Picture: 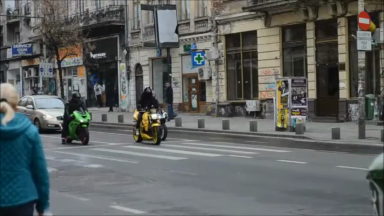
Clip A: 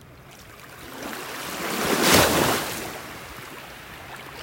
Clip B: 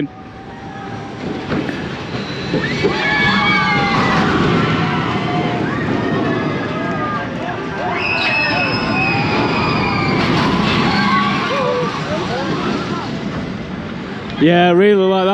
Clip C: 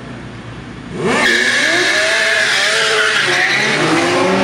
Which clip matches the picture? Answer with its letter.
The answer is C